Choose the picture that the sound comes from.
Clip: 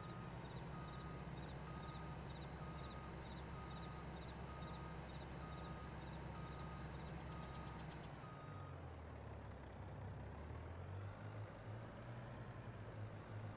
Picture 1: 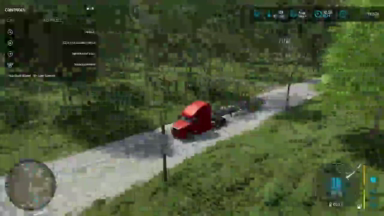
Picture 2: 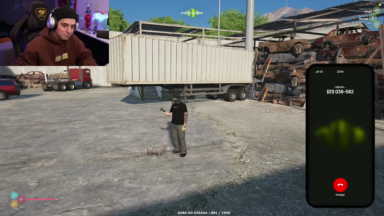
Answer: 1